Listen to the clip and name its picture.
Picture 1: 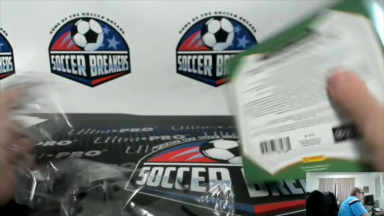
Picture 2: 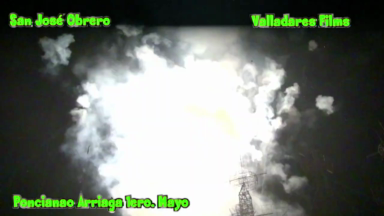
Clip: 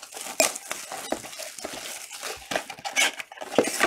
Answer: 1